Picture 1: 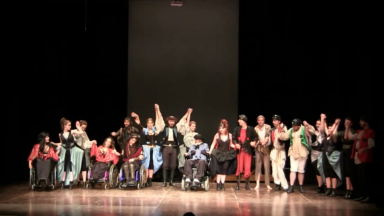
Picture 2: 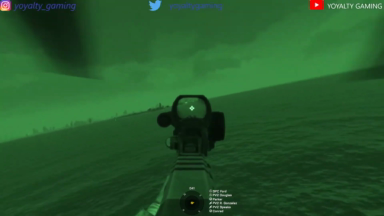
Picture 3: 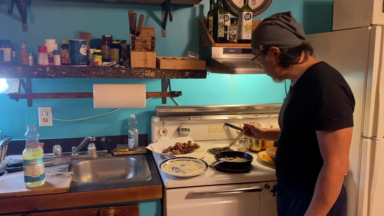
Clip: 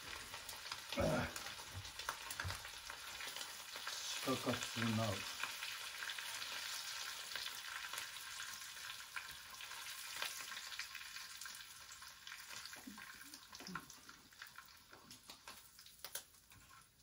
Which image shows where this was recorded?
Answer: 3